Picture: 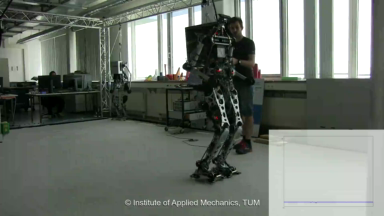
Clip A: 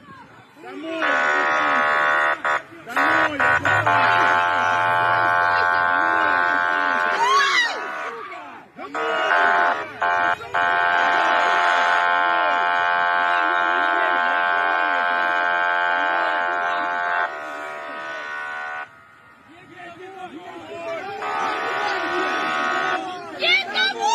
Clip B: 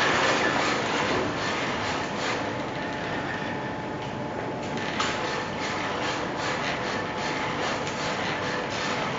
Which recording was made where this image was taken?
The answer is B